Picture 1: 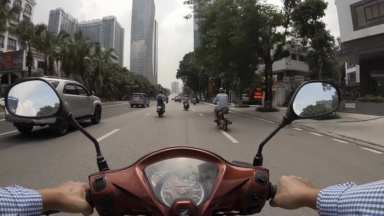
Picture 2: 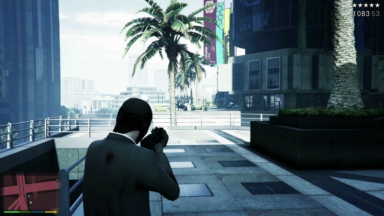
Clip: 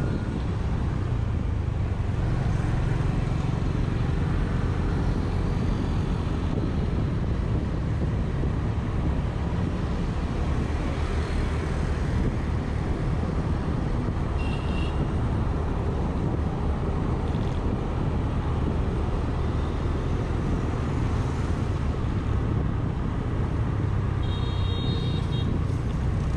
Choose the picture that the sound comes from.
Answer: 1